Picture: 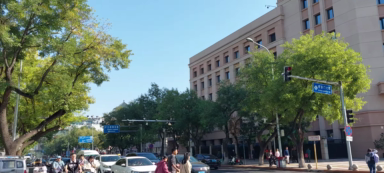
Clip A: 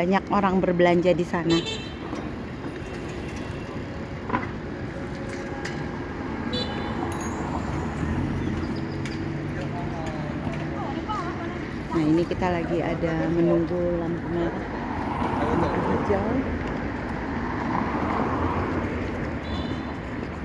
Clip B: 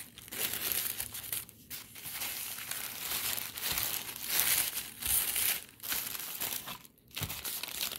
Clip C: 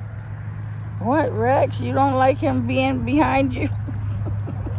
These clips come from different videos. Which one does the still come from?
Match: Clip A